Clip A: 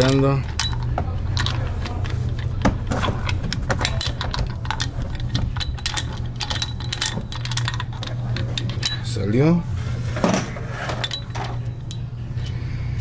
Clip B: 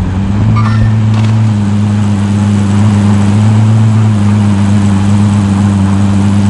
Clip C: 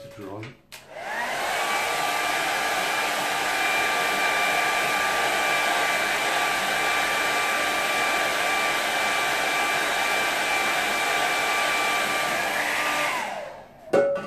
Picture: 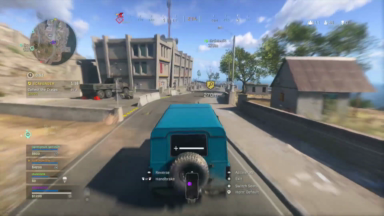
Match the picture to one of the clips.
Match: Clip B